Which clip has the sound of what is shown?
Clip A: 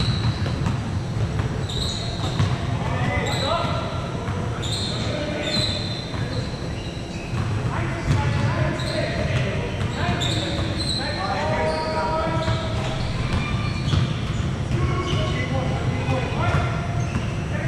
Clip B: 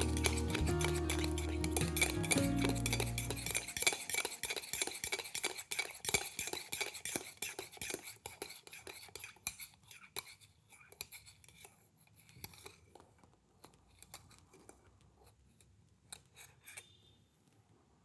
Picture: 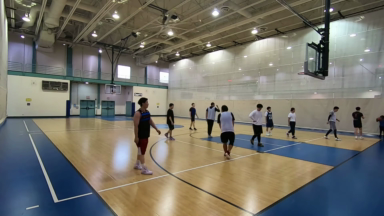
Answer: A